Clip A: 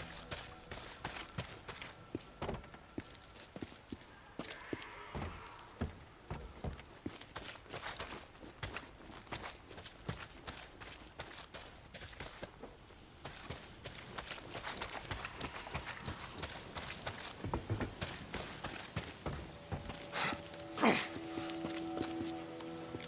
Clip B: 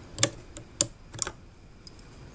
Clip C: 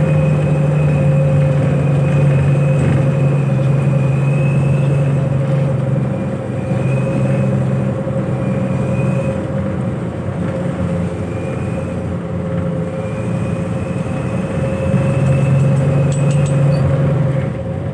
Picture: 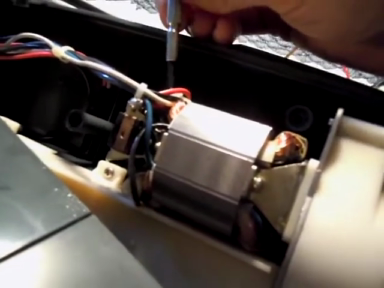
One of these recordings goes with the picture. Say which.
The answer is B